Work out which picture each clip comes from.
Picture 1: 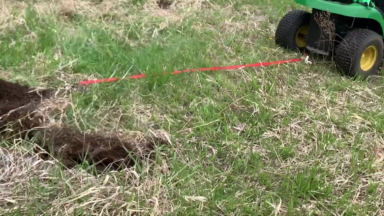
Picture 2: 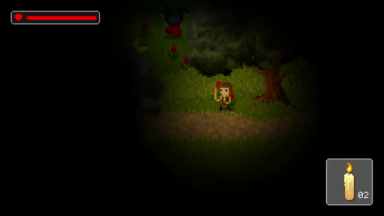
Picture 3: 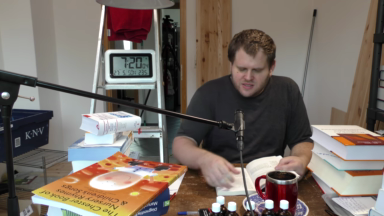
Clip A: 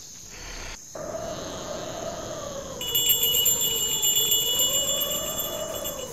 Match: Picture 2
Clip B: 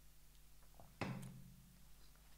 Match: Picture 3